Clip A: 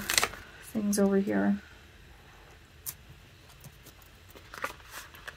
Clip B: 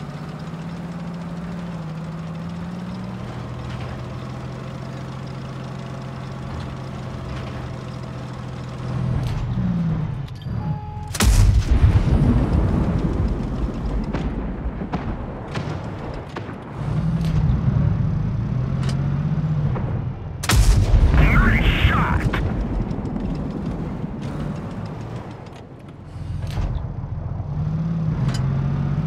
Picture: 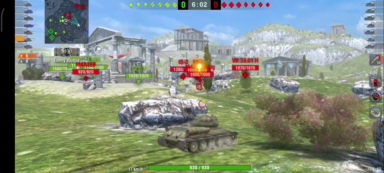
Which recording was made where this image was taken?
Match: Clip B